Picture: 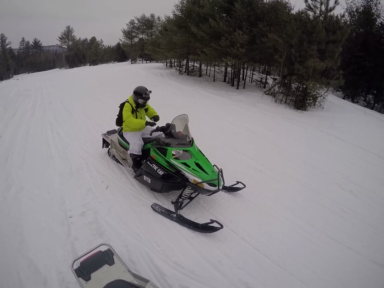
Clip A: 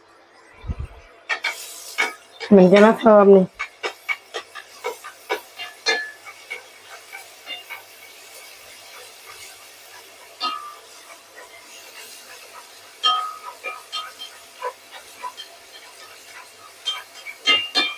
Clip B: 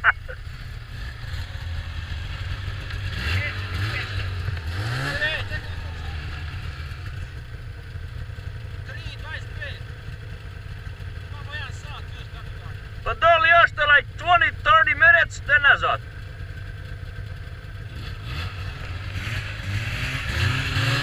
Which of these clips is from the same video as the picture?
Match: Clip B